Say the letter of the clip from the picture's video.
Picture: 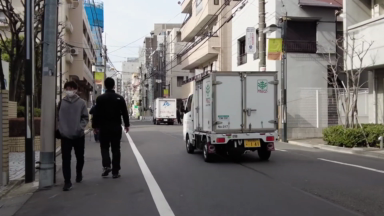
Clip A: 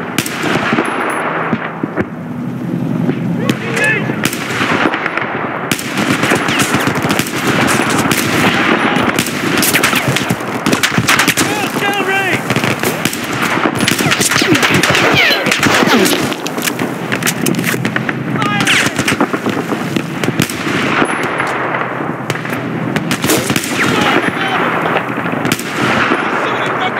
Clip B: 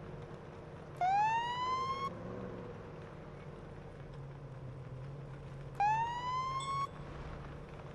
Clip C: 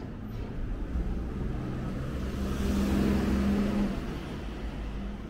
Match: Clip C